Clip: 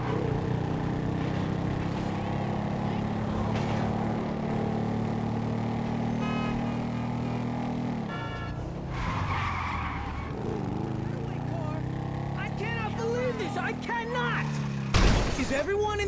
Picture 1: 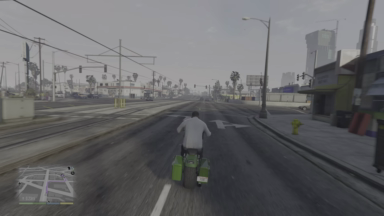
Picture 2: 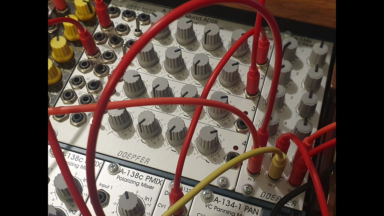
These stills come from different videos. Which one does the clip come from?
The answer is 1